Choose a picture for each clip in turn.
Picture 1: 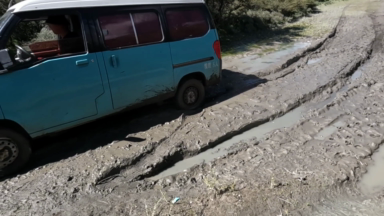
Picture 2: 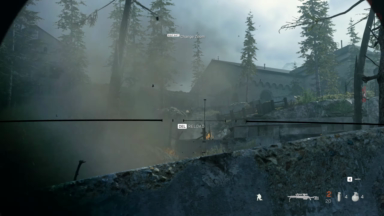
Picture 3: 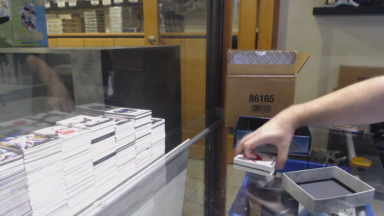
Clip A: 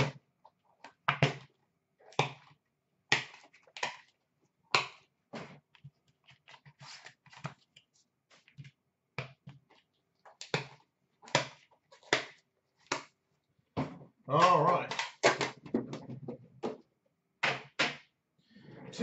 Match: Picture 3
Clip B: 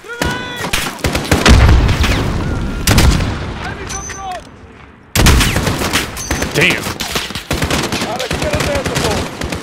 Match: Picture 2